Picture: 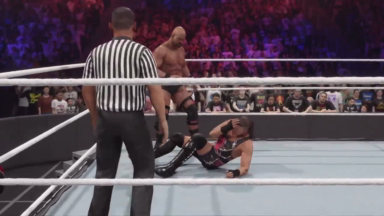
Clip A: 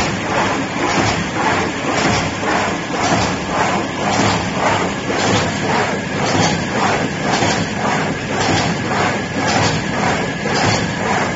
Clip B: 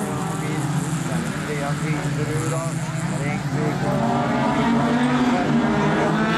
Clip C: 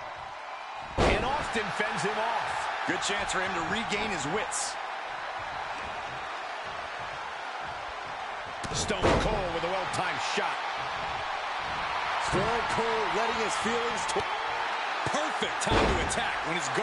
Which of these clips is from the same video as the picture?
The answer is C